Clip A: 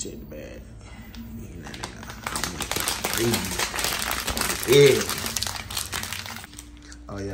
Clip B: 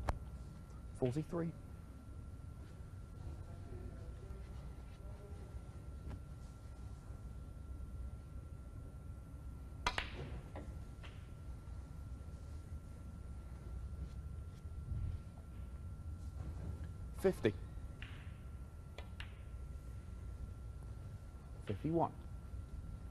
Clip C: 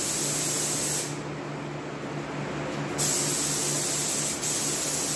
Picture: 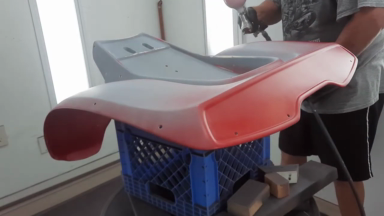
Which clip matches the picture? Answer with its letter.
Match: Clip C